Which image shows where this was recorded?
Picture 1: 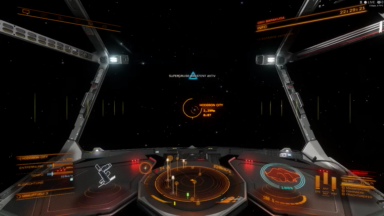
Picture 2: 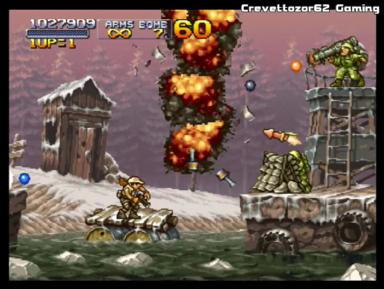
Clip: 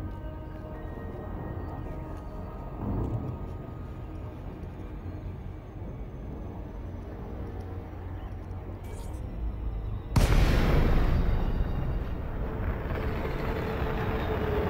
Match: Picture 1